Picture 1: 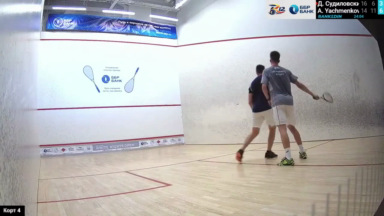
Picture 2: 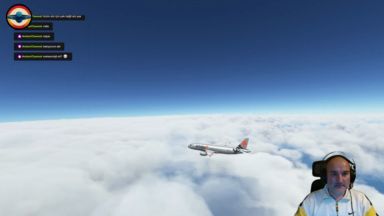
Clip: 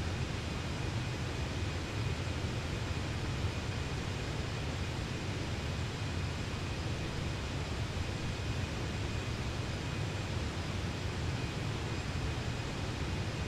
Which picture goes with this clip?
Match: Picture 2